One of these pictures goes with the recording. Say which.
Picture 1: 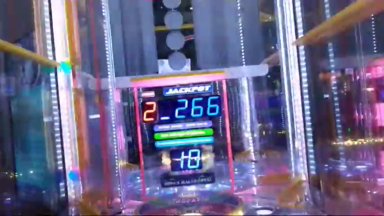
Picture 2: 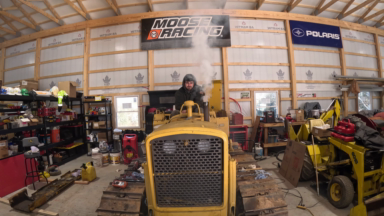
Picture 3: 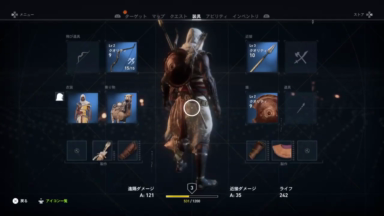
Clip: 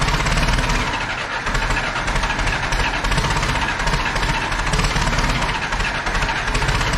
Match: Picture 2